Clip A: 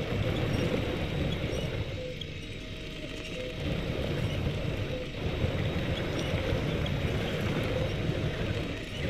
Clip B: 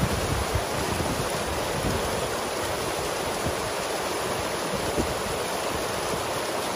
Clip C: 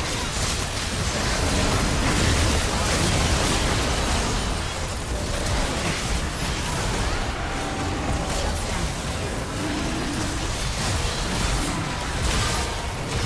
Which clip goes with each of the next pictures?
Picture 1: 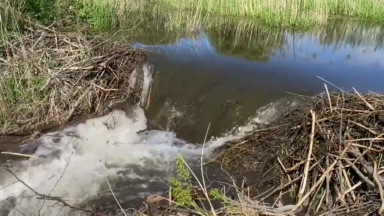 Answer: B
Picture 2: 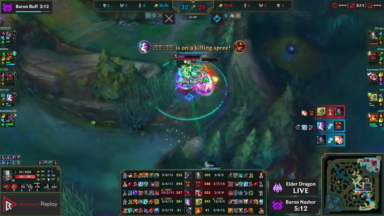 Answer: C